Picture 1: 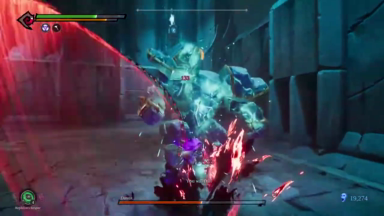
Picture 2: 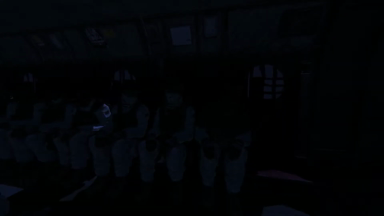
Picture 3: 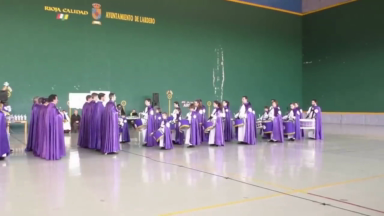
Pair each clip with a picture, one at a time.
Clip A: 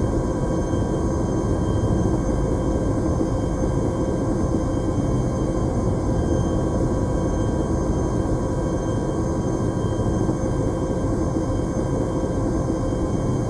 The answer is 2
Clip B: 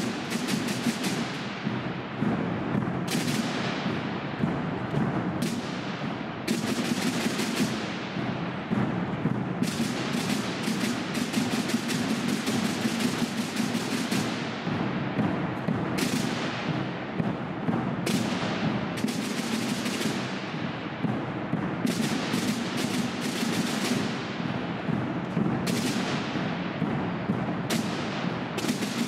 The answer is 3